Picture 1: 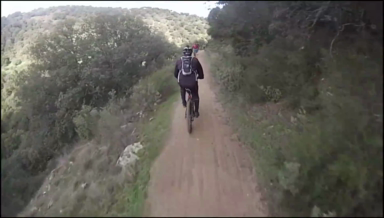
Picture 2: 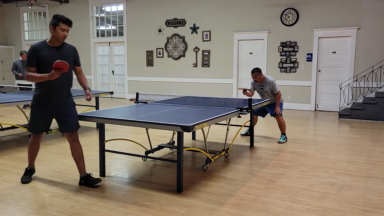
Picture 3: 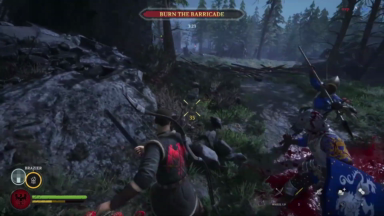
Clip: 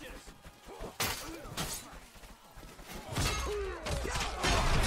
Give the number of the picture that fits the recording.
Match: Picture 3